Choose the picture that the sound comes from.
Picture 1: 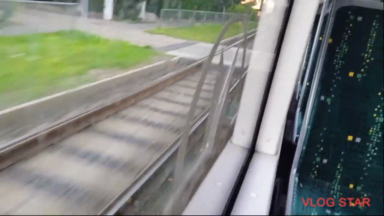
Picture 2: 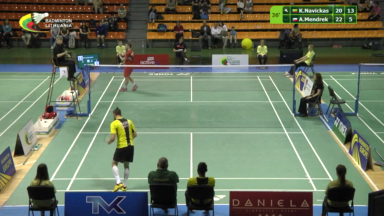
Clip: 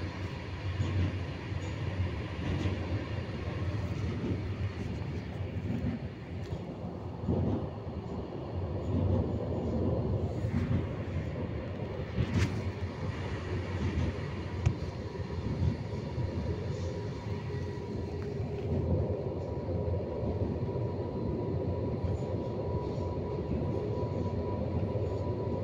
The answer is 1